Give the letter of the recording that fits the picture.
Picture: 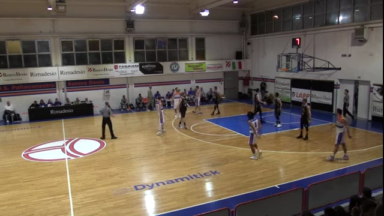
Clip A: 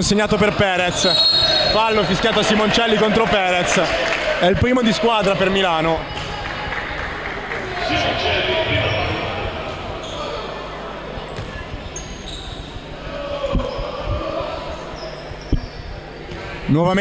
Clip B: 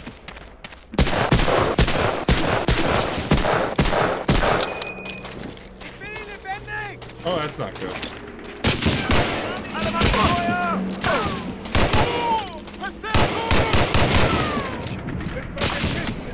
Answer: A